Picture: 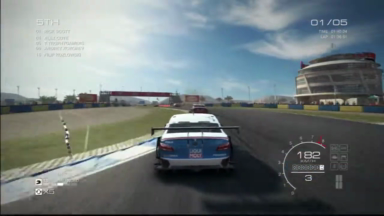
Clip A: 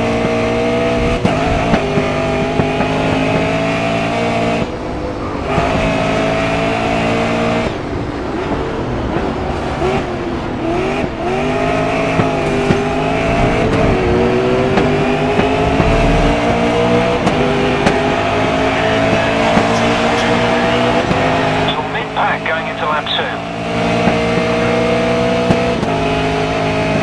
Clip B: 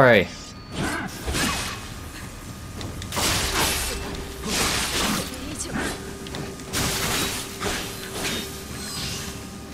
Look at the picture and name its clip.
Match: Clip A